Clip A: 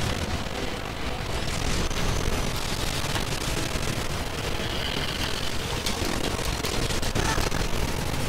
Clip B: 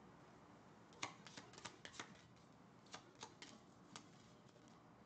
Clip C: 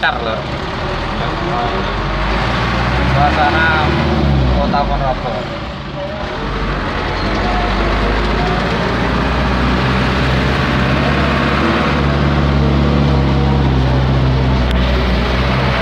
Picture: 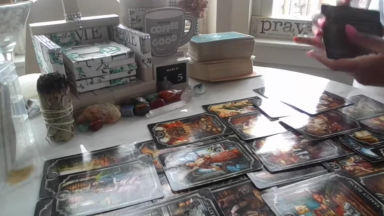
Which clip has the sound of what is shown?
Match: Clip B